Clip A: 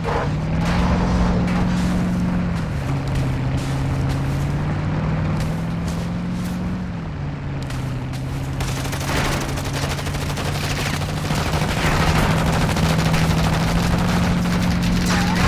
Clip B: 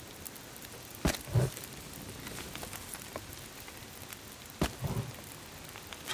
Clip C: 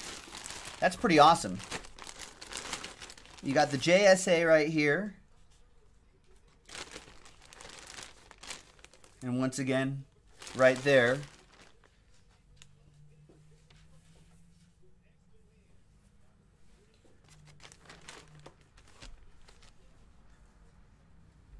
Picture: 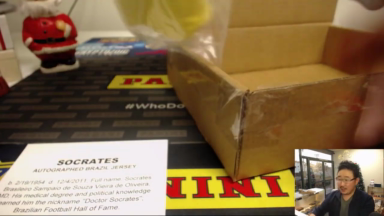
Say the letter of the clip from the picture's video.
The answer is C